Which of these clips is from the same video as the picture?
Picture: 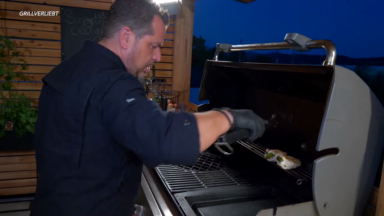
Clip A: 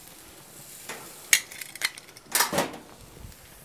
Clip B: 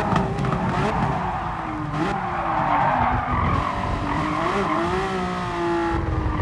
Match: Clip A